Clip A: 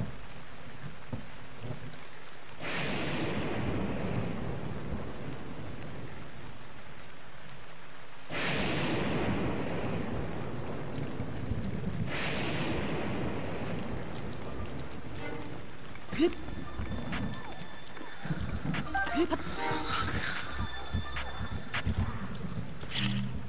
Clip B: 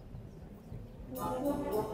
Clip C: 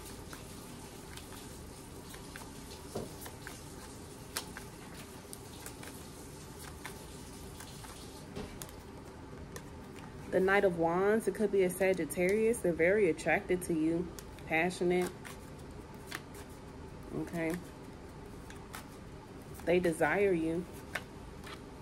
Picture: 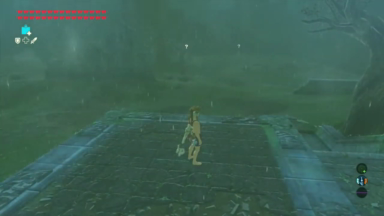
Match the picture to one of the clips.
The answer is A